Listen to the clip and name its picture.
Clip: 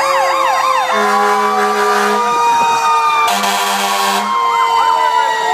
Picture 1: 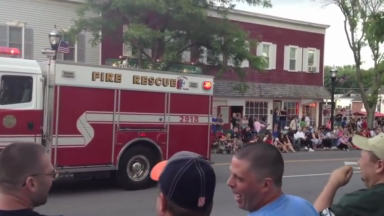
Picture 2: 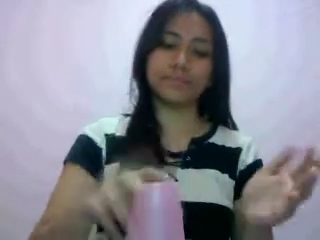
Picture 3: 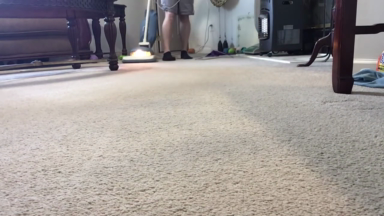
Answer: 1